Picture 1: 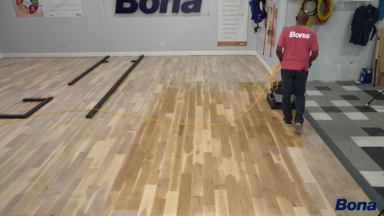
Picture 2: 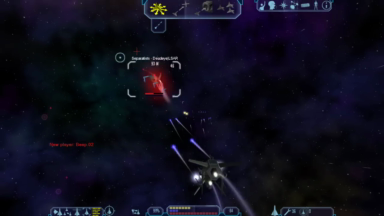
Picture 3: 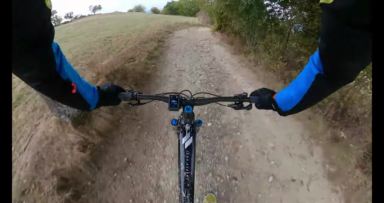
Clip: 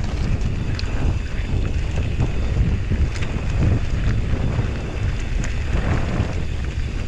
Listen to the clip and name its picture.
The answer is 3